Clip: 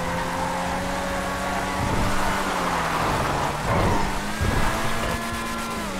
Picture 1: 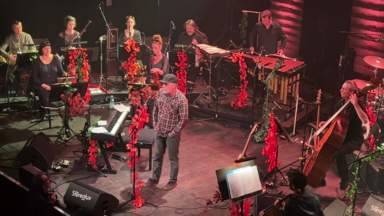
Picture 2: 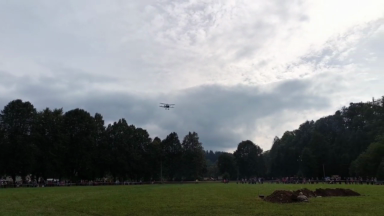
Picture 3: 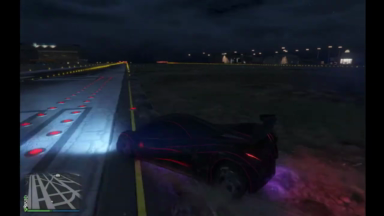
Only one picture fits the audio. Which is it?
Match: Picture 3